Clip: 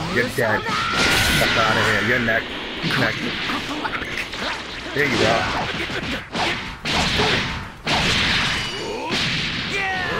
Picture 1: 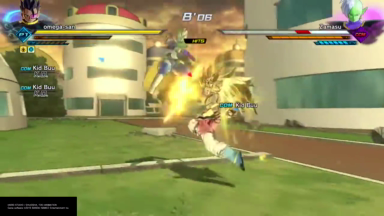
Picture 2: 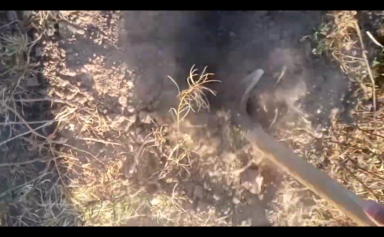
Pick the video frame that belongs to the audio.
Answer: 1